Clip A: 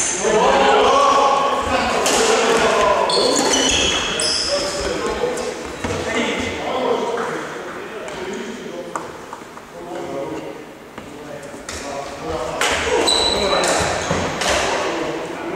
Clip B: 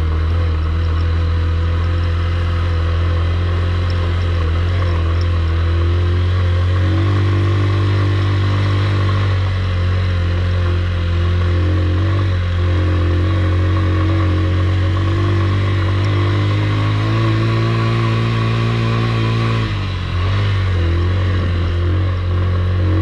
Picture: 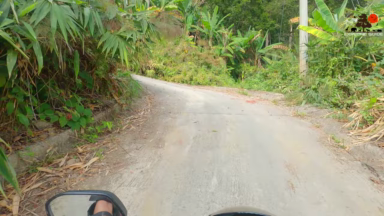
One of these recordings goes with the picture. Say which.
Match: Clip B